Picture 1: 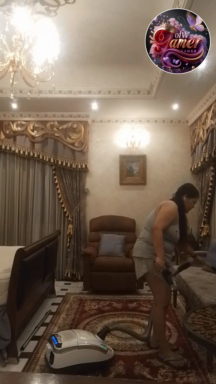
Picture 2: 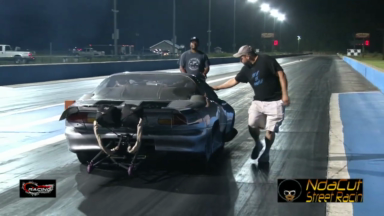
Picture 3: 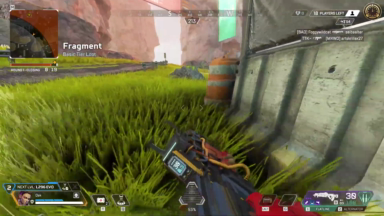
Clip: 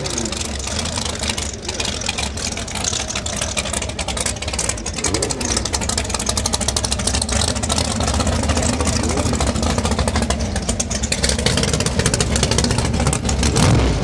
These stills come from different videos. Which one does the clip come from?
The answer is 2